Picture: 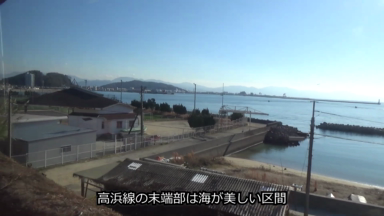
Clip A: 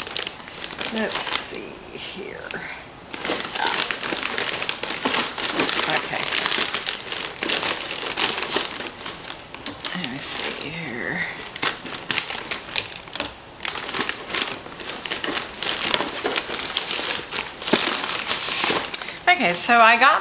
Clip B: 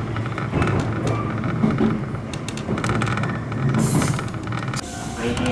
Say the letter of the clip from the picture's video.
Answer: B